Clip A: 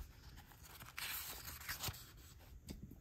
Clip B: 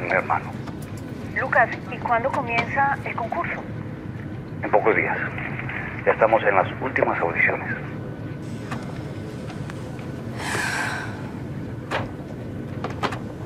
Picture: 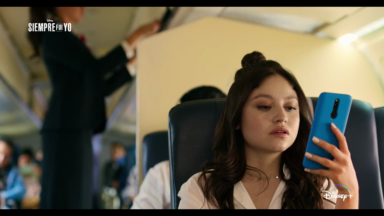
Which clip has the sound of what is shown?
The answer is B